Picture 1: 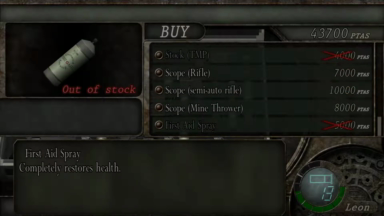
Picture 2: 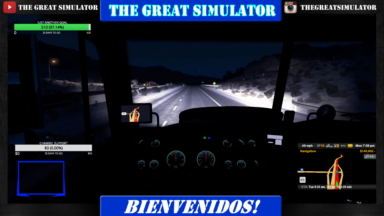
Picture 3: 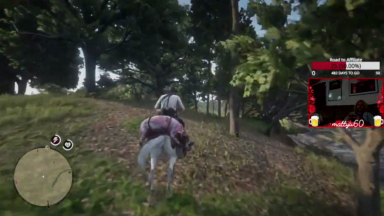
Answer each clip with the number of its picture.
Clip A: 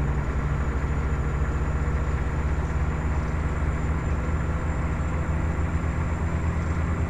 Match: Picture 2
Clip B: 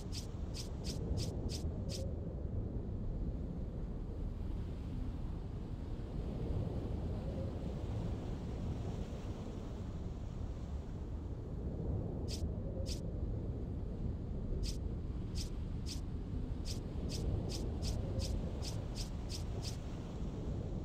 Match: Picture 1